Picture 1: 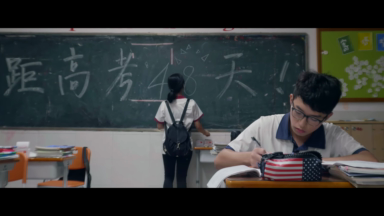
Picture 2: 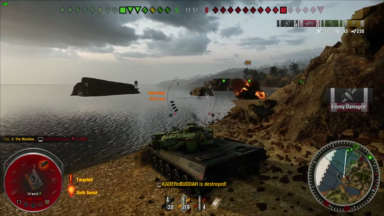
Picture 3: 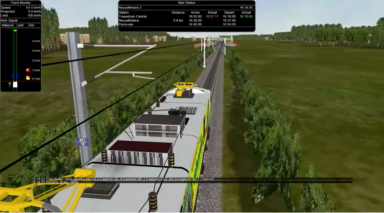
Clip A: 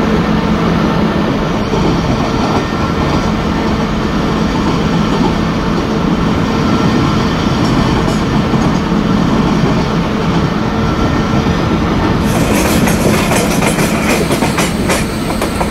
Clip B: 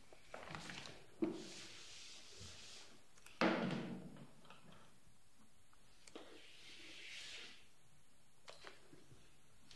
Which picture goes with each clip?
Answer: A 3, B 1